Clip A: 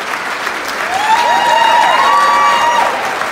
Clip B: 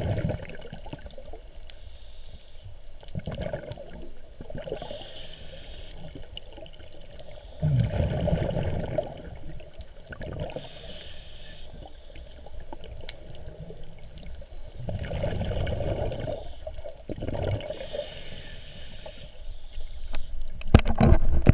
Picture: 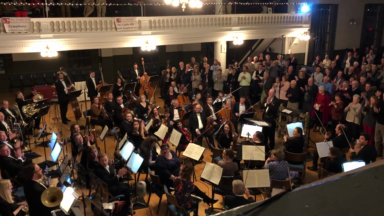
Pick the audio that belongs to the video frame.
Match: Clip A